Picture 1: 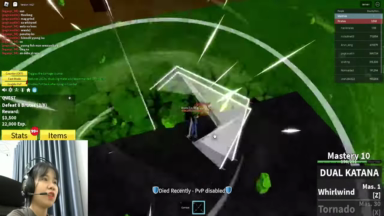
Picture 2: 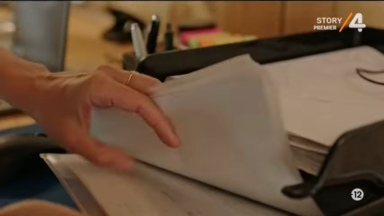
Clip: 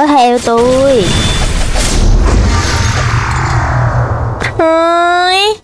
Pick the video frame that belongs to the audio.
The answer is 1